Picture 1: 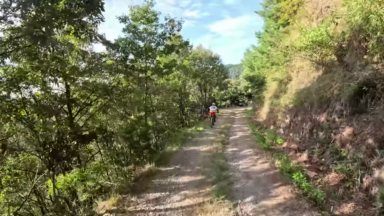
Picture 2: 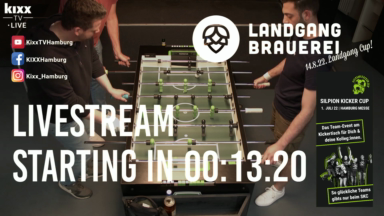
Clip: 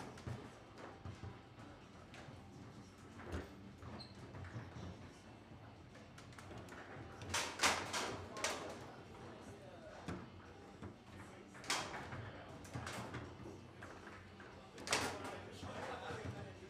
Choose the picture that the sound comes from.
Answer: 2